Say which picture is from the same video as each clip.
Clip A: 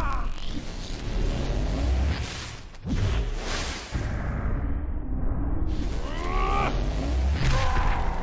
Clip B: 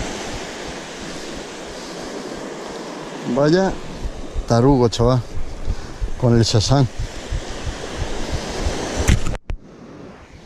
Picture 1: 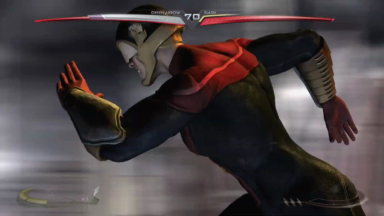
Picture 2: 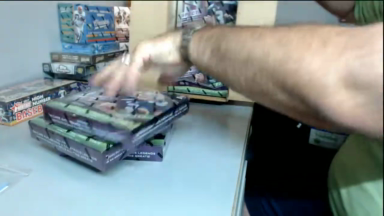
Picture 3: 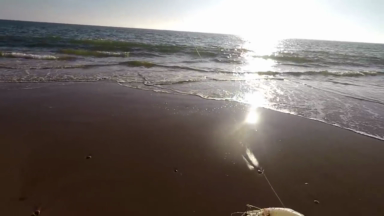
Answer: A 1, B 3